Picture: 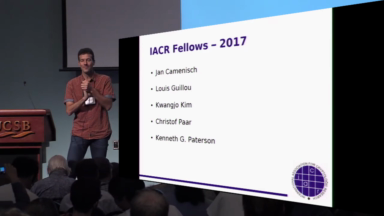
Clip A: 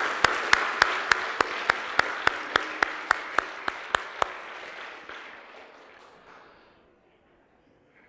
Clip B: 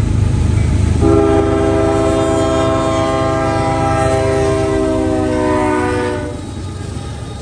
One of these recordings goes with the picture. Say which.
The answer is A